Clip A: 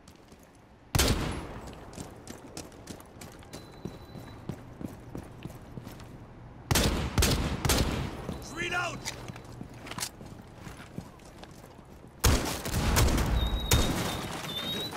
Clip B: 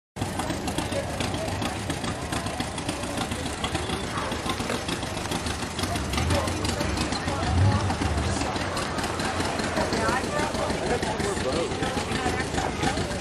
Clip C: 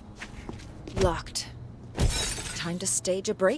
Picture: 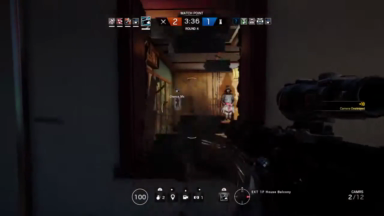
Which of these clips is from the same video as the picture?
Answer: A